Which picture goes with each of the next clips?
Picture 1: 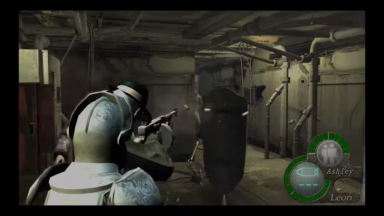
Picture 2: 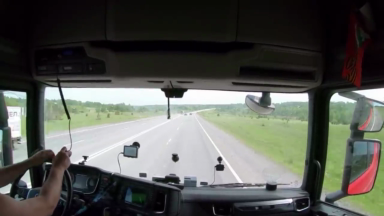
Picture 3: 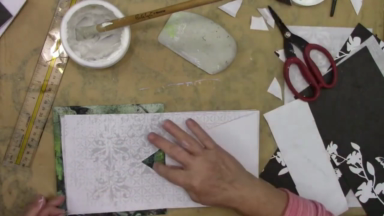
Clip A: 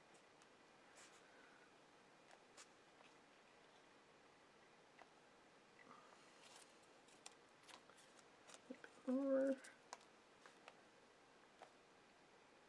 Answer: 3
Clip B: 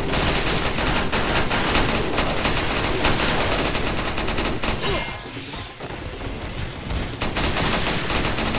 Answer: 1